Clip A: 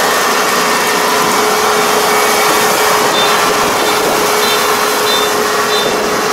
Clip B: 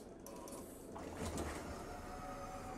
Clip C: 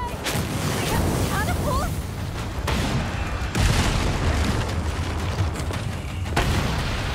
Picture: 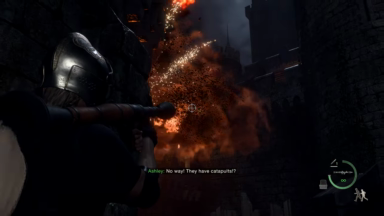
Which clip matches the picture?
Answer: C